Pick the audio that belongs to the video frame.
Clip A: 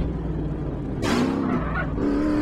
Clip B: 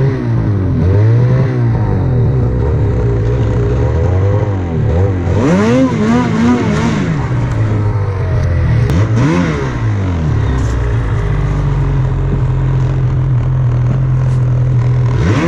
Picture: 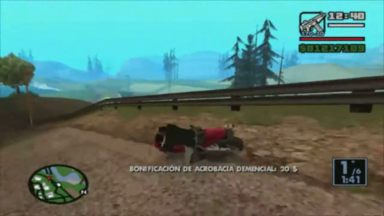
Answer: A